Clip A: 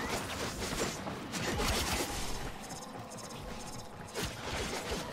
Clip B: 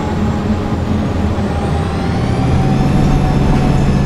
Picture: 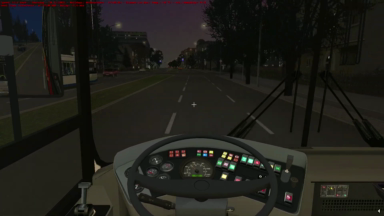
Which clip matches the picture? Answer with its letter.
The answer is B